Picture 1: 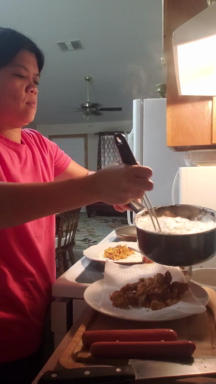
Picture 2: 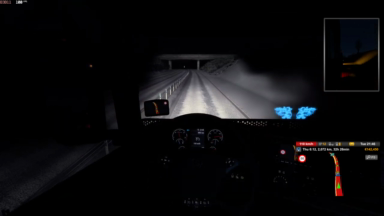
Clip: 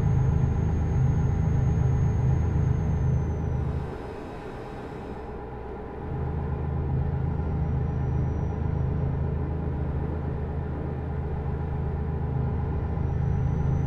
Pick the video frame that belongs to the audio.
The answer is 2